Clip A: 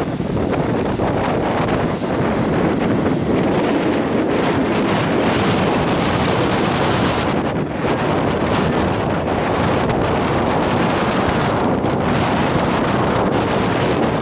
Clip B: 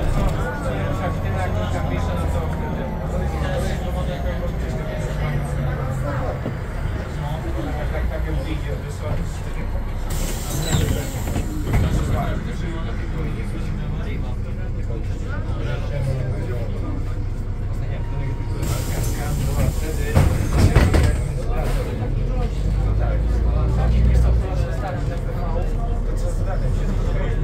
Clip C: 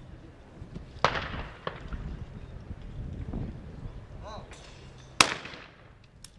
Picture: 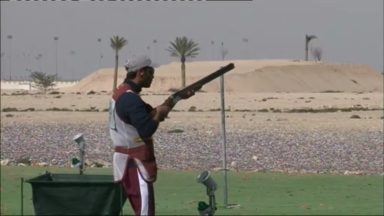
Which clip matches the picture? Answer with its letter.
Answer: C